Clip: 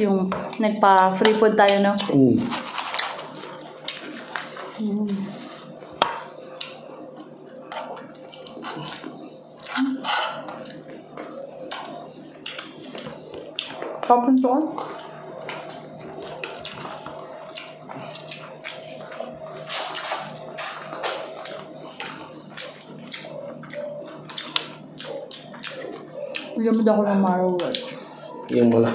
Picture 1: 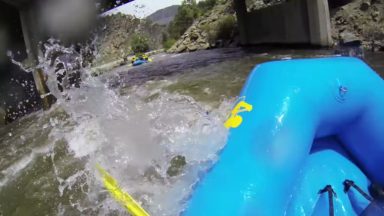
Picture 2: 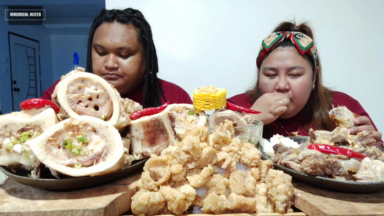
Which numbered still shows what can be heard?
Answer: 2